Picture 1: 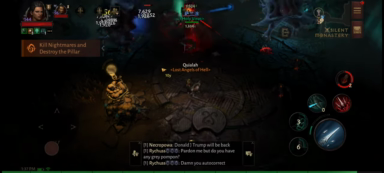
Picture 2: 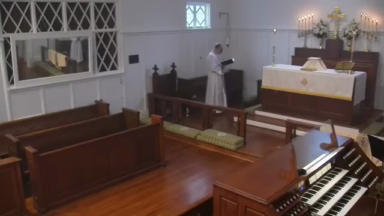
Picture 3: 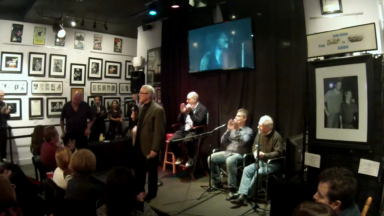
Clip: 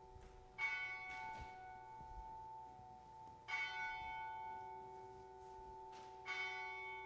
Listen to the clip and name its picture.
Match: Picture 2